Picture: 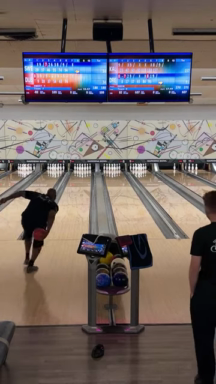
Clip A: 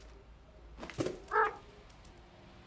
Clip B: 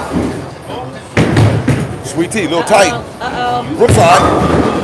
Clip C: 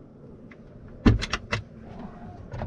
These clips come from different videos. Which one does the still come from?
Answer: B